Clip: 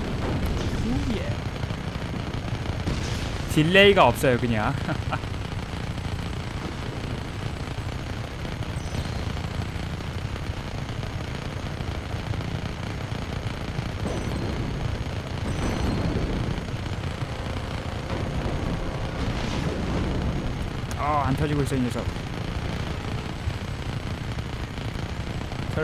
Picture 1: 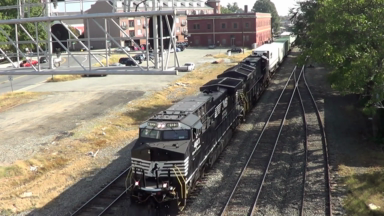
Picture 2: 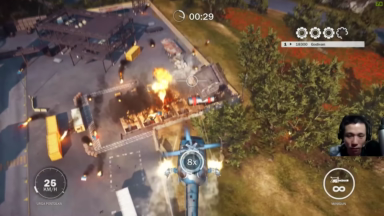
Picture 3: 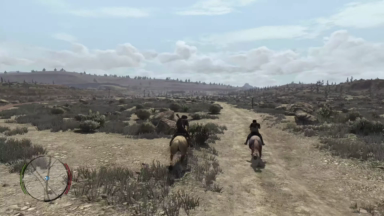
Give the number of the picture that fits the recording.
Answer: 2